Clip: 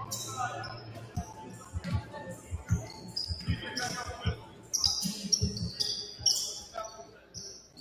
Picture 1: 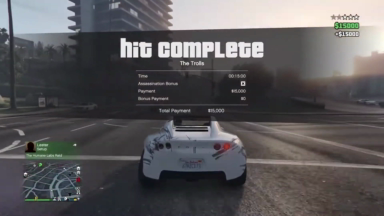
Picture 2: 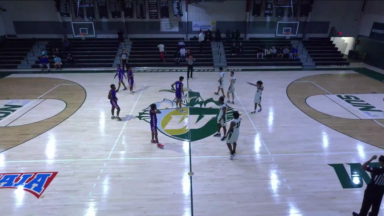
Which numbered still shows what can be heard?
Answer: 2